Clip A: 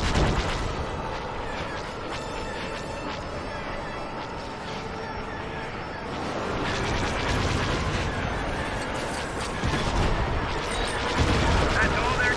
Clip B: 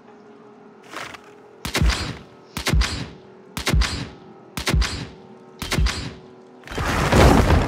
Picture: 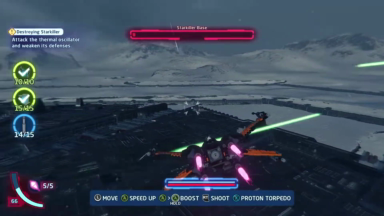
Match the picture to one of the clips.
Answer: A